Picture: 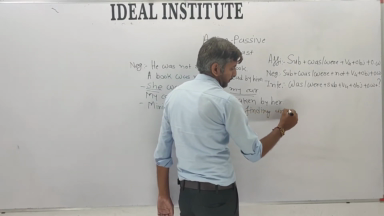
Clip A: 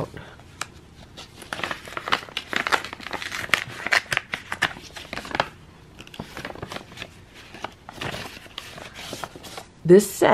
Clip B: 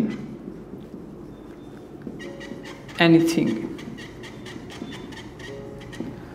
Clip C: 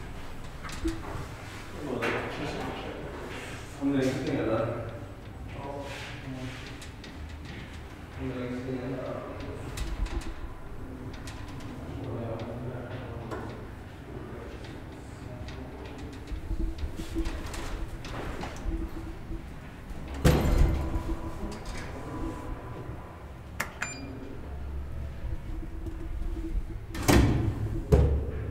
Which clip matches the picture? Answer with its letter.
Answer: B